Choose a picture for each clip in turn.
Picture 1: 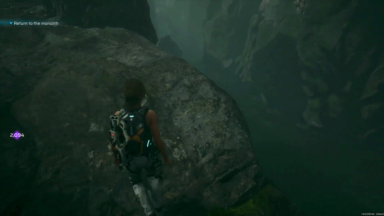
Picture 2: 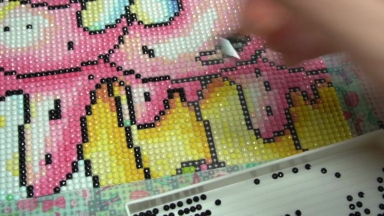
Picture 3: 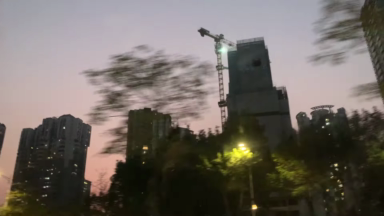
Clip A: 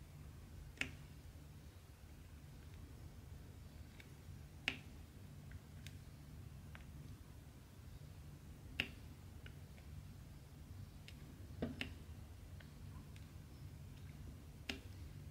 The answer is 2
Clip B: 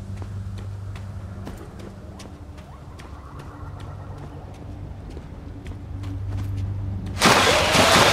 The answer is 1